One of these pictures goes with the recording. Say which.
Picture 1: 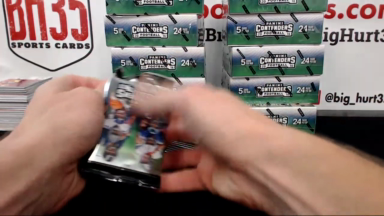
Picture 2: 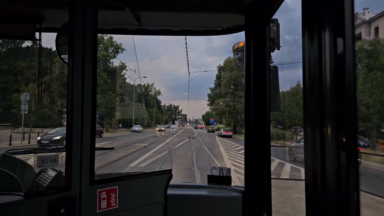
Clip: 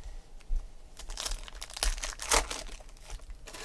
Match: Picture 1